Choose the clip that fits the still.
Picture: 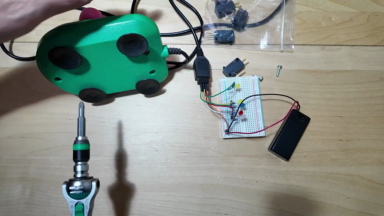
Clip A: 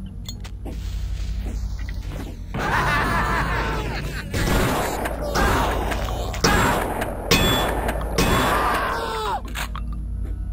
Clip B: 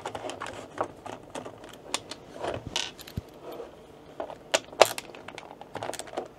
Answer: B